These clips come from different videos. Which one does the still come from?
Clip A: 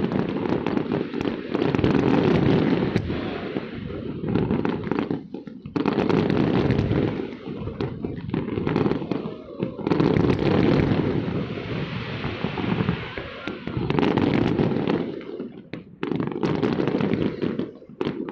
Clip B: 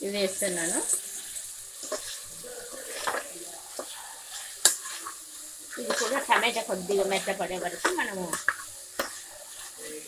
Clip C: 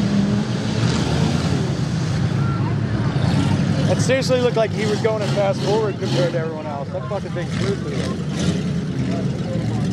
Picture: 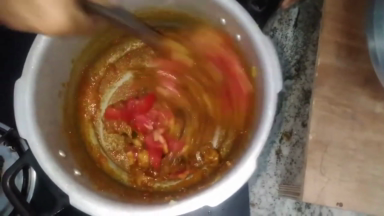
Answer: B